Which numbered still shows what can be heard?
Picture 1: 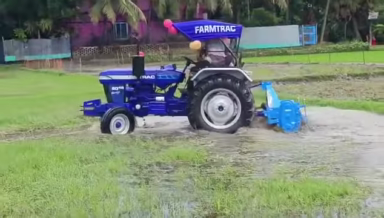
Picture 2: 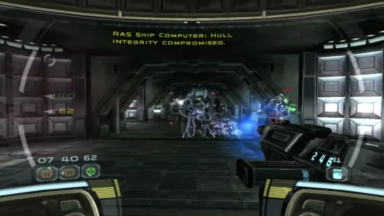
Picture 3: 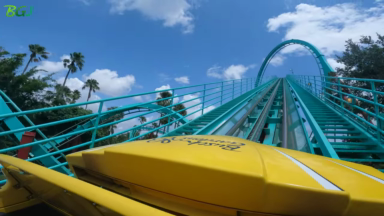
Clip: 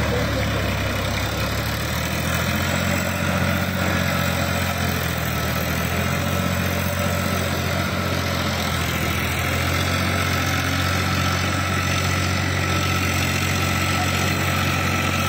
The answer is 1